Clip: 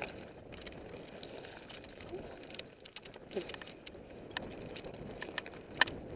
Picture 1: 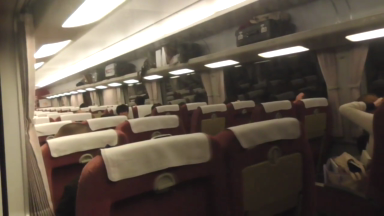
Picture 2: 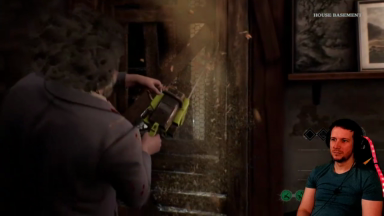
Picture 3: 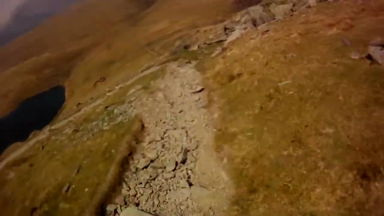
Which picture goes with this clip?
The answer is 3